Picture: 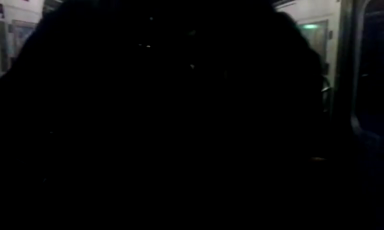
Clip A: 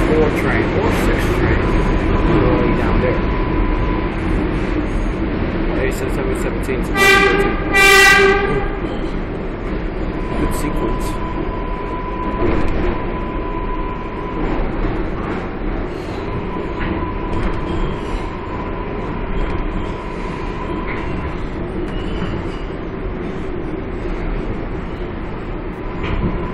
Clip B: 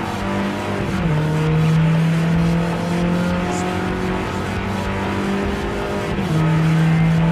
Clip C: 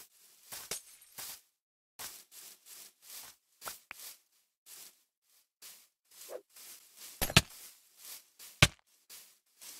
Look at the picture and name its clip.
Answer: A